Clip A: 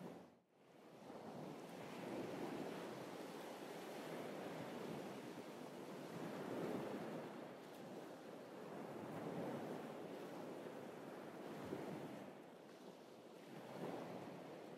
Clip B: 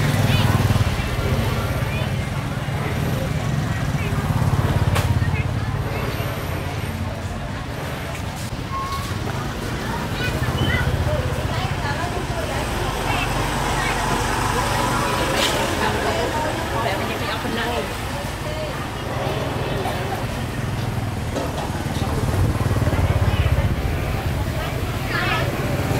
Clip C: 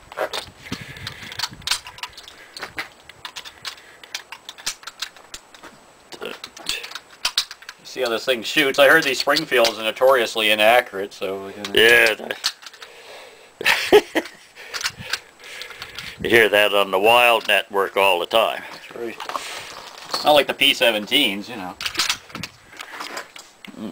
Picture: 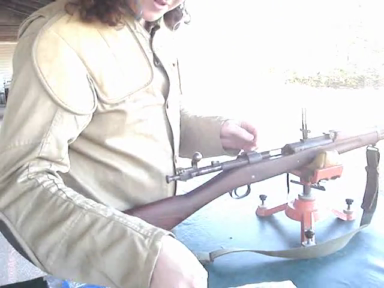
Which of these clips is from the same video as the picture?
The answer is C